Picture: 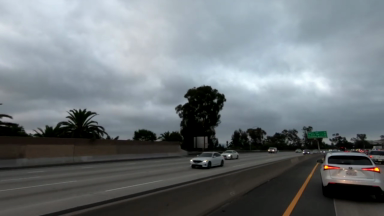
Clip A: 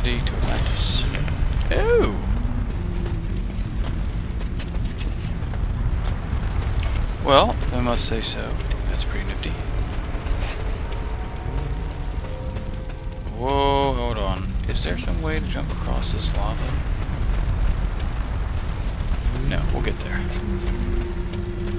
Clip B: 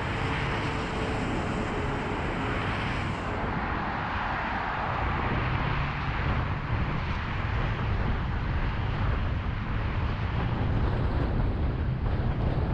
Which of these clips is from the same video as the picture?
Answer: B